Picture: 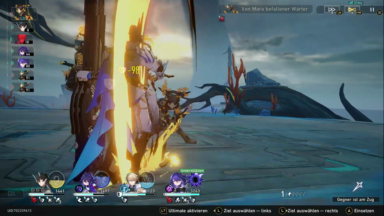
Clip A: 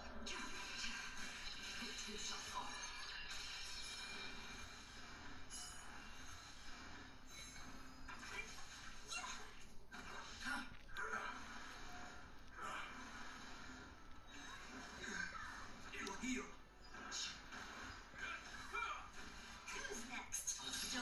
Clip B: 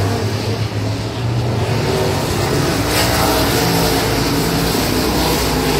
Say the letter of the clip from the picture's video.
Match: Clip A